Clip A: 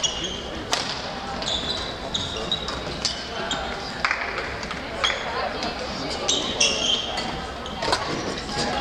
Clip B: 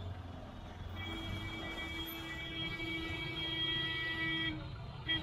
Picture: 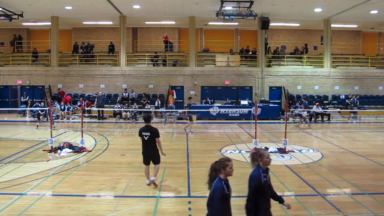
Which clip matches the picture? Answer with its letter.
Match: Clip A